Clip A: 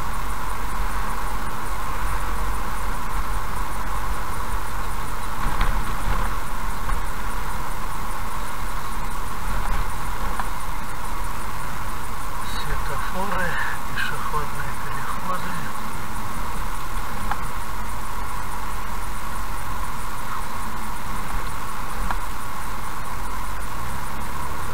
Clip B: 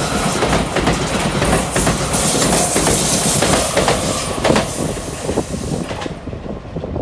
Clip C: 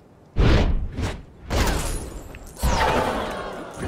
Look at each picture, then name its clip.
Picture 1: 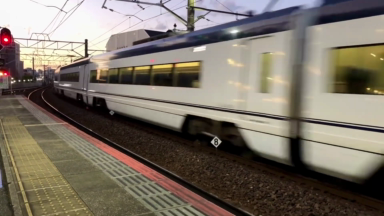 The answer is B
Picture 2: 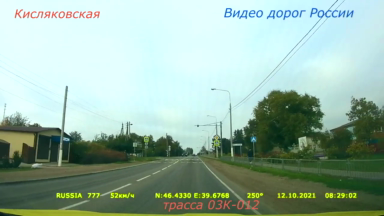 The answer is A